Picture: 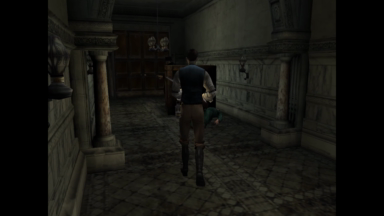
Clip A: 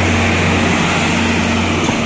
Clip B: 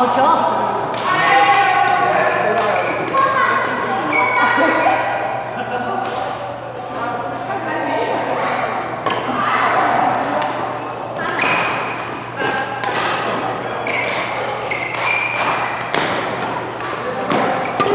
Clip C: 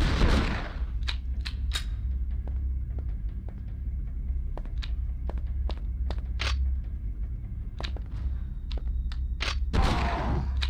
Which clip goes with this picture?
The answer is C